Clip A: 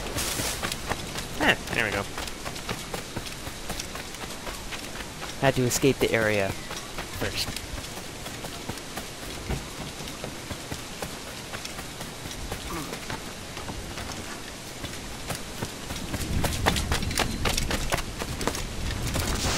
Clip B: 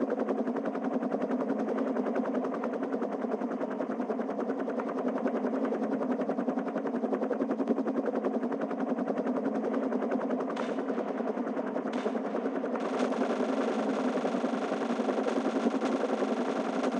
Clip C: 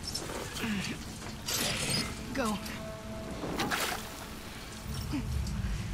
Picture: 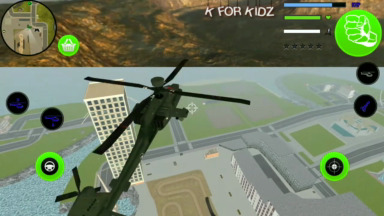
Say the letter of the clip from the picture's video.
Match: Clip B